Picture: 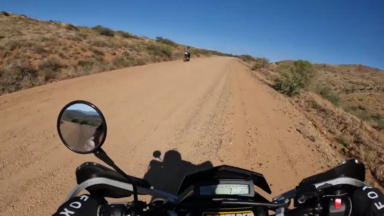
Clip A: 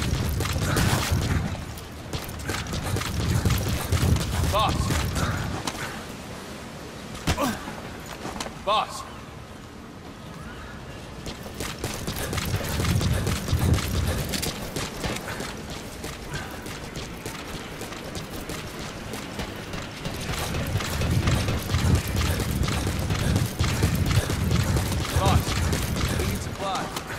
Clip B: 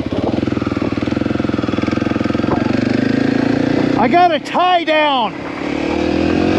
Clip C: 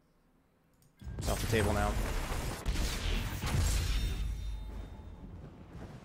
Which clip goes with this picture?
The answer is B